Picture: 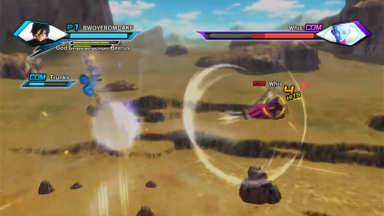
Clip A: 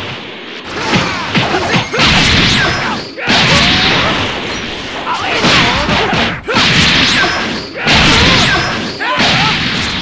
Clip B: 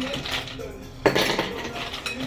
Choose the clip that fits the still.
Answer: A